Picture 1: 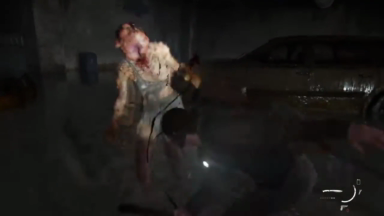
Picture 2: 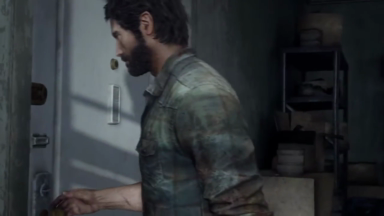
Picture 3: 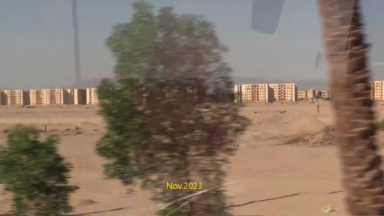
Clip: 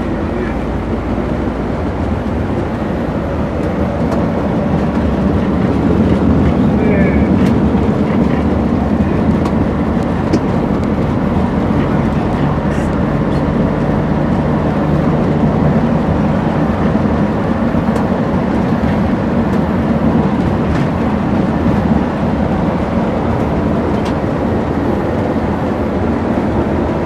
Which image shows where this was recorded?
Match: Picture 3